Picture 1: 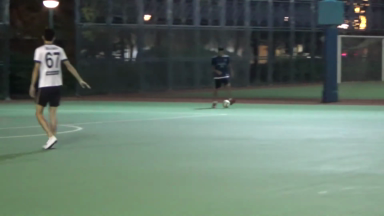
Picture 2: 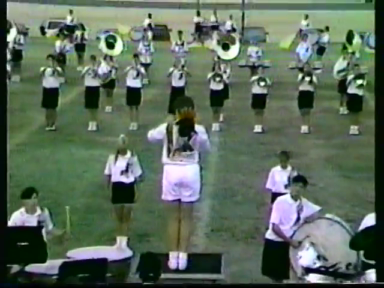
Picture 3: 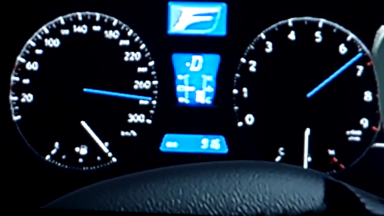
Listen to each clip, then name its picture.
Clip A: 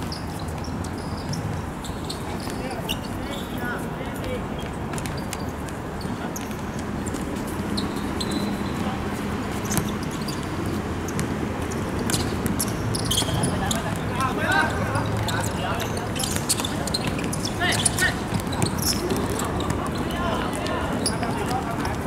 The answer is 1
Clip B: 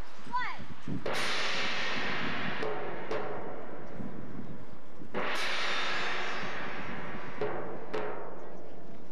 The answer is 2